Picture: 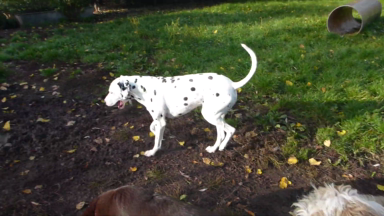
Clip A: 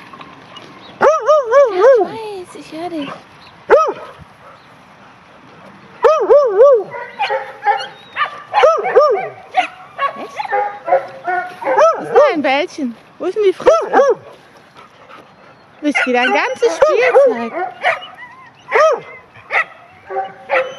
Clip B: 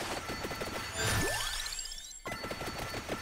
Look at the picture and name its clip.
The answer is A